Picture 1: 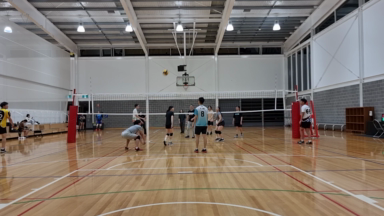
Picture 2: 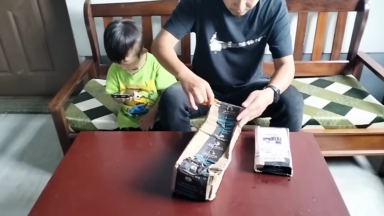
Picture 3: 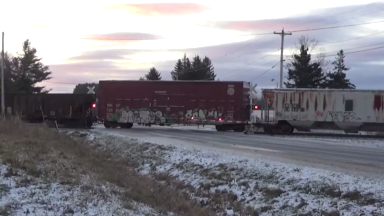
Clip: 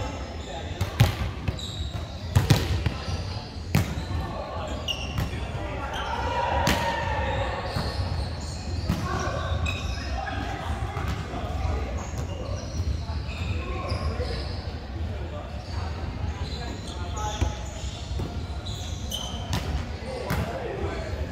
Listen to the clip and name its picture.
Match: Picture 1